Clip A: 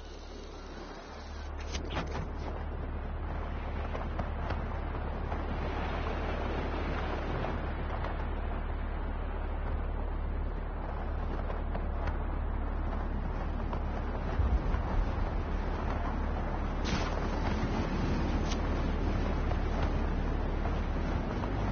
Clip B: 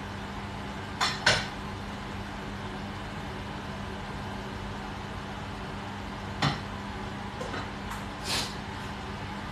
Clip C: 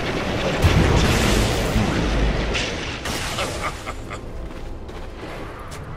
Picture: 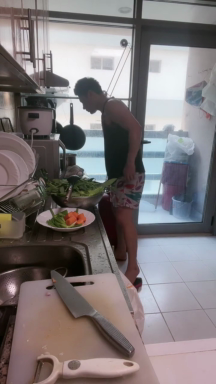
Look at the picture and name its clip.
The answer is B